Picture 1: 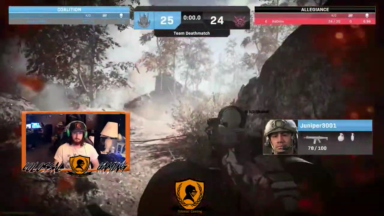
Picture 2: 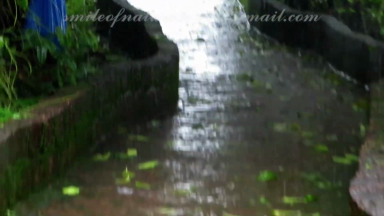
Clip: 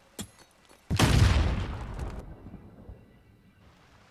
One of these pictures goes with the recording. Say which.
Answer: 1